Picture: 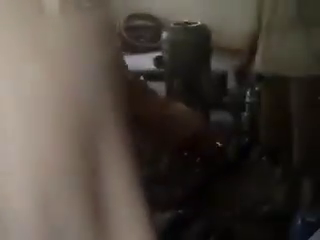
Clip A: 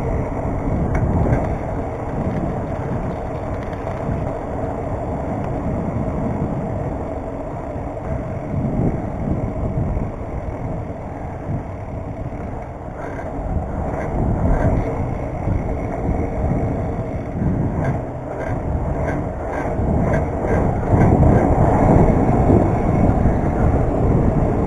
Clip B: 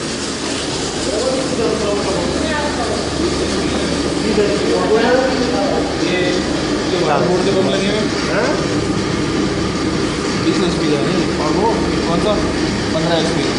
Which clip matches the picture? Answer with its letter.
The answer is B